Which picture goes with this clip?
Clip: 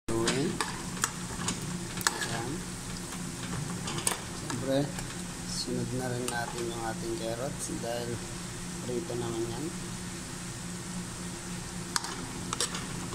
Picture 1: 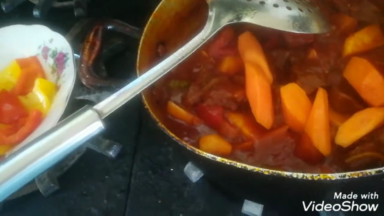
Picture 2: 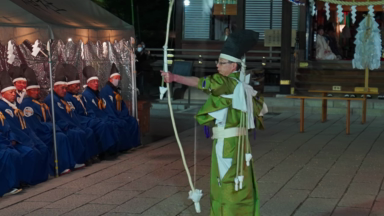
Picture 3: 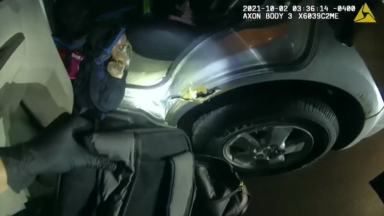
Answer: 1